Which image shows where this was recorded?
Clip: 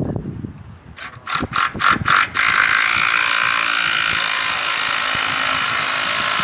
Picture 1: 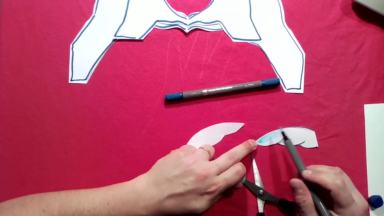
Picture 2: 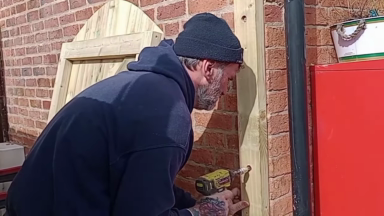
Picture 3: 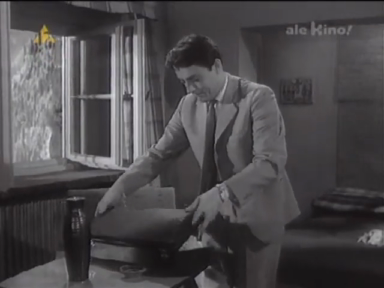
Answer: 2